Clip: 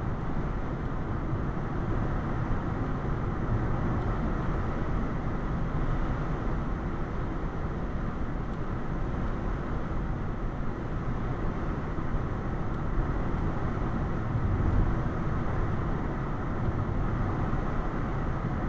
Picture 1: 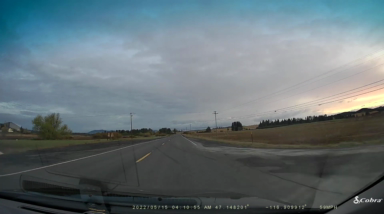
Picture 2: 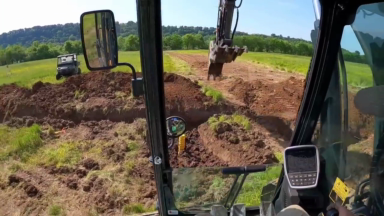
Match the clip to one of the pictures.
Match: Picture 1